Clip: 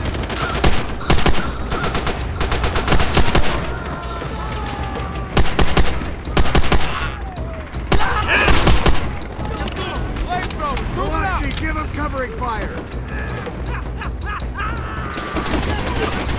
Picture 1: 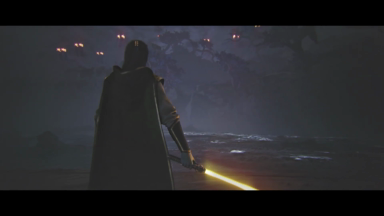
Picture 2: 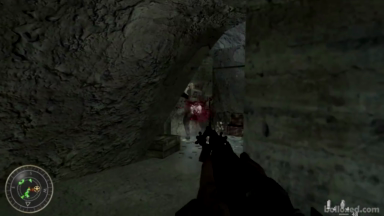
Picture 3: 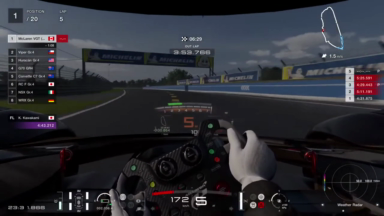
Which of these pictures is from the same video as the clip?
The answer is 2